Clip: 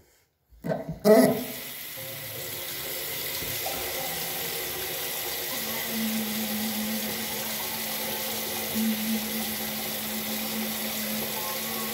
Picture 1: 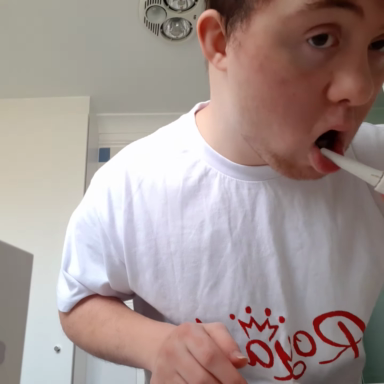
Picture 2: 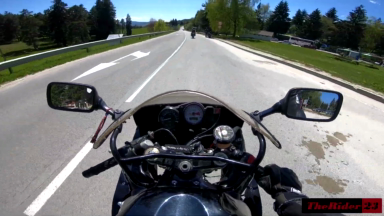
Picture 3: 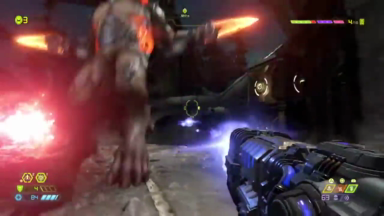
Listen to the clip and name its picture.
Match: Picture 1